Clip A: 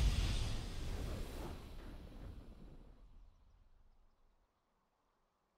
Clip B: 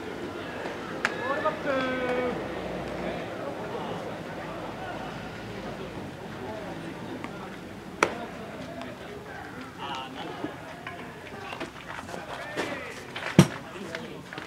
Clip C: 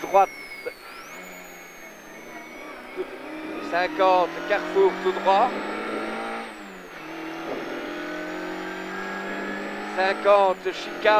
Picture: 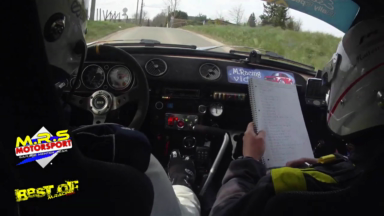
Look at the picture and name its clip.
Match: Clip C